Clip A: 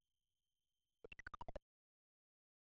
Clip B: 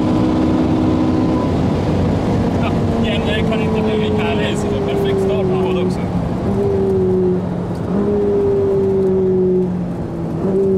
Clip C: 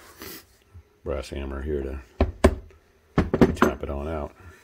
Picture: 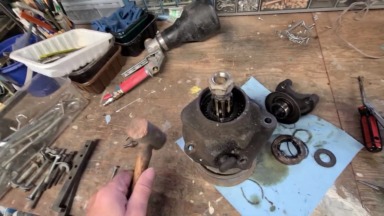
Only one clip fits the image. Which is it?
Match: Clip C